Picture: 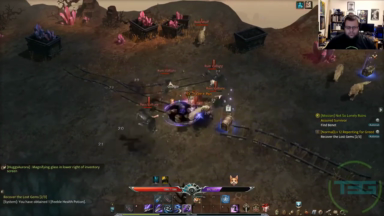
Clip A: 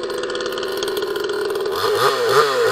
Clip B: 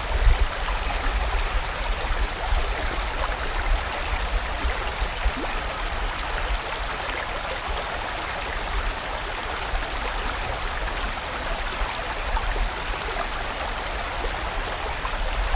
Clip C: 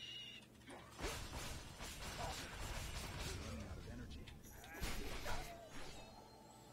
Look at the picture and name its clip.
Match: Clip C